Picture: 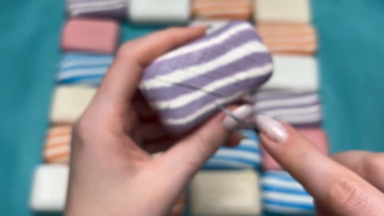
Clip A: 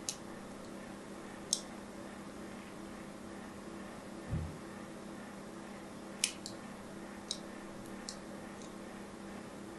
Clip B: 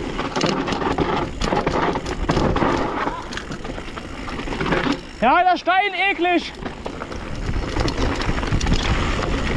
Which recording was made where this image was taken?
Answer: A